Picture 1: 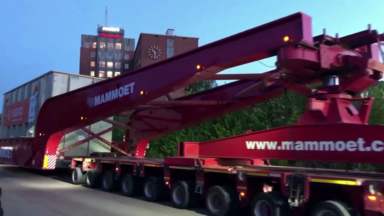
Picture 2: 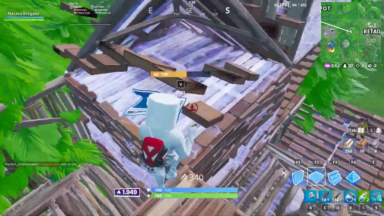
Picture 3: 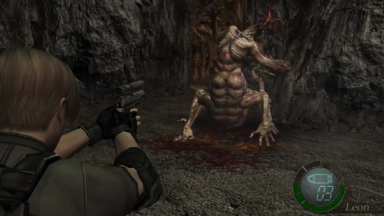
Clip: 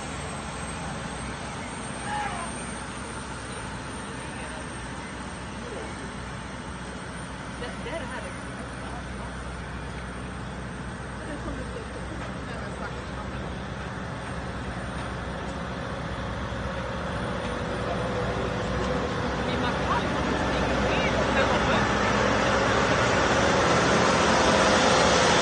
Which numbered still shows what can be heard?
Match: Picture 1